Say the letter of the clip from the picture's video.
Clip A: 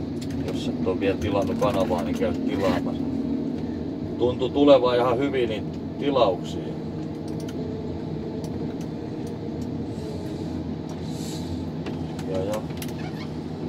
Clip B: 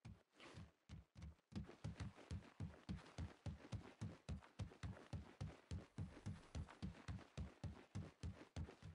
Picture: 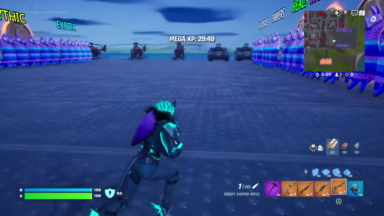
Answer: B